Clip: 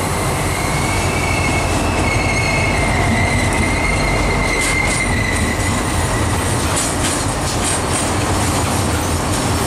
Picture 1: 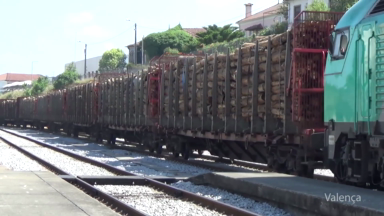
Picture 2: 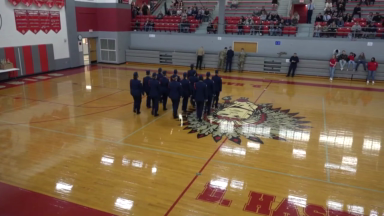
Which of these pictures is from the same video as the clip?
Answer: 1